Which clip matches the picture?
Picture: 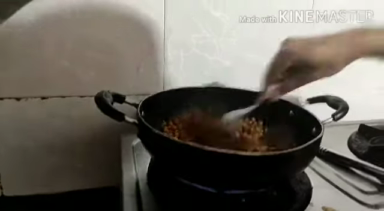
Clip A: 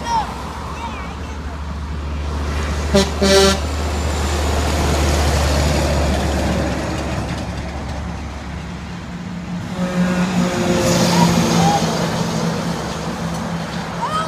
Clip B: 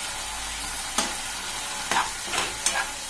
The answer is B